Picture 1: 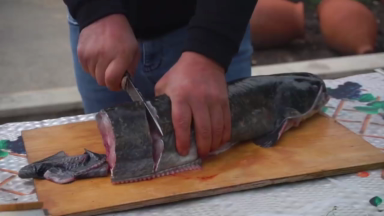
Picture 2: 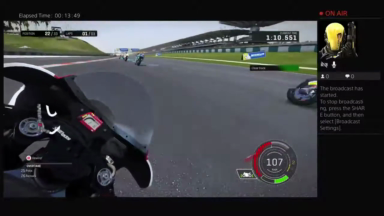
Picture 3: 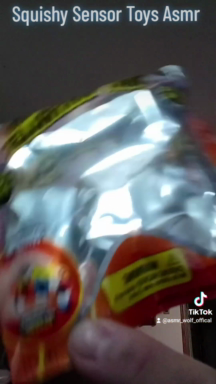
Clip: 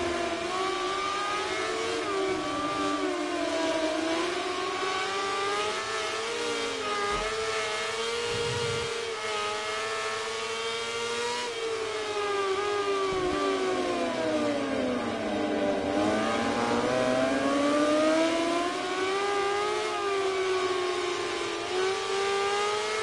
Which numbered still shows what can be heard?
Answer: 2